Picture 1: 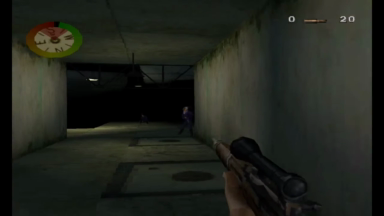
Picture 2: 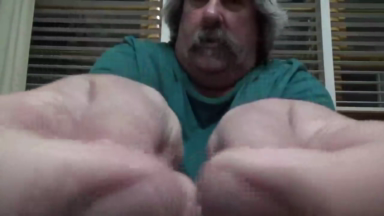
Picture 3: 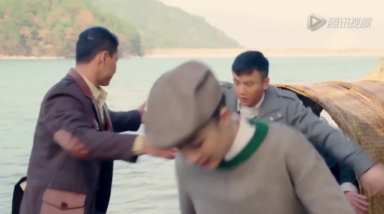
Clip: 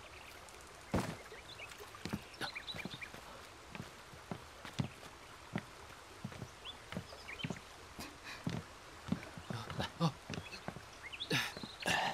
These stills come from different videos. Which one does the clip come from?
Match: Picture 3